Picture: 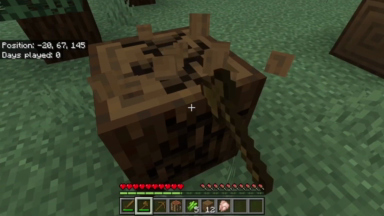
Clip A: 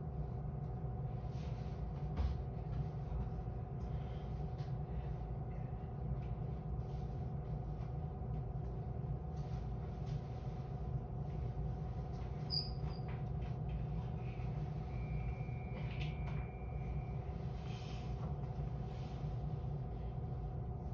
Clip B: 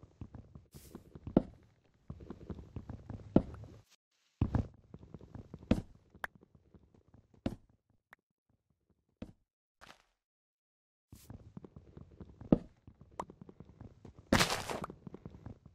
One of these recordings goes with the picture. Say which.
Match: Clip B